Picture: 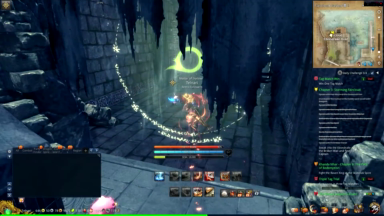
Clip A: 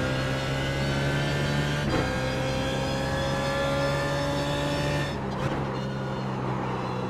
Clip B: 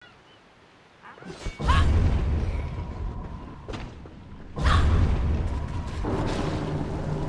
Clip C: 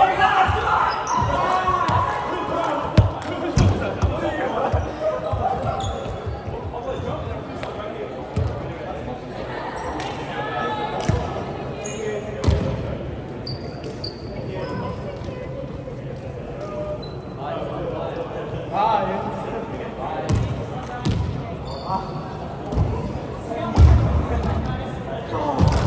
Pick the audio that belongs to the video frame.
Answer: B